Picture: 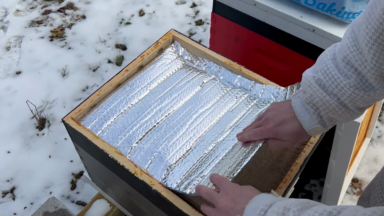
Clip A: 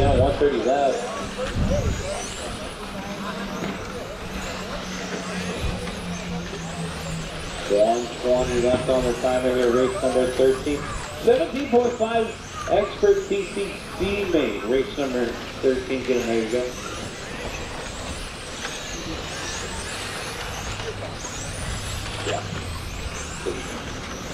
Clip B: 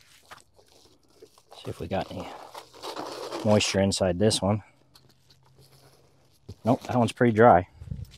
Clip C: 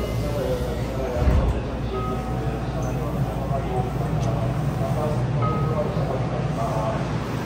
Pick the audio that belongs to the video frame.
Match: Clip B